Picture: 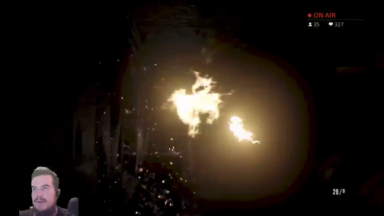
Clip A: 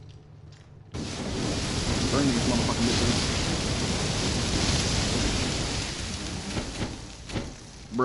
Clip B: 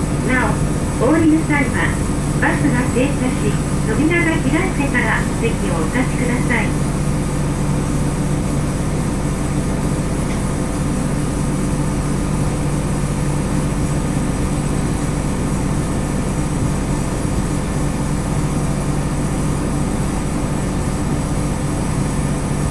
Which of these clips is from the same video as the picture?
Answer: A